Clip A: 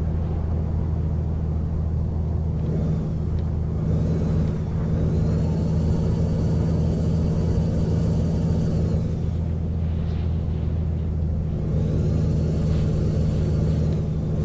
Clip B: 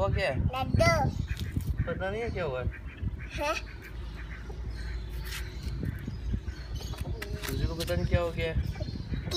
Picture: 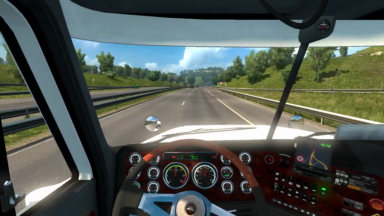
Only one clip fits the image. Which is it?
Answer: A